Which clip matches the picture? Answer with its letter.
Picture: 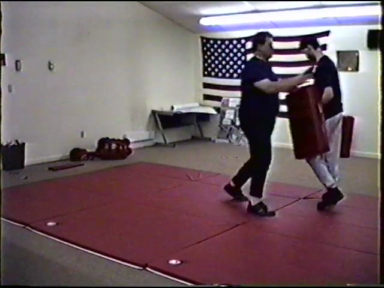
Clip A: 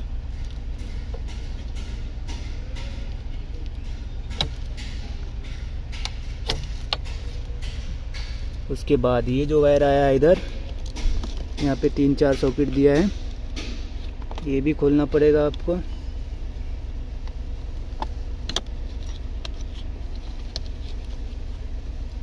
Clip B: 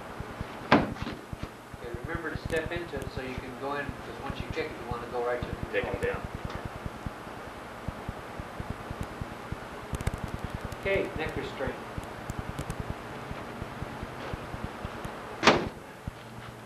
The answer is B